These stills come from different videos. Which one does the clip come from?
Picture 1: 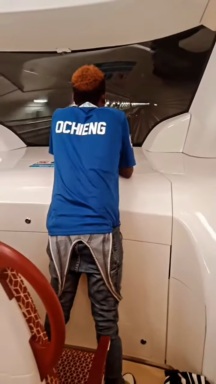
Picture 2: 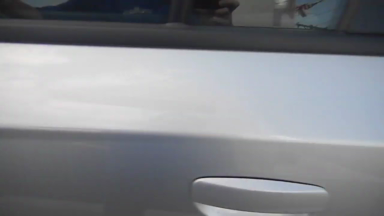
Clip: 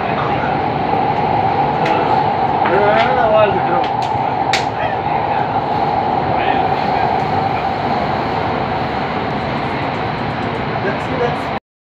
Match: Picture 1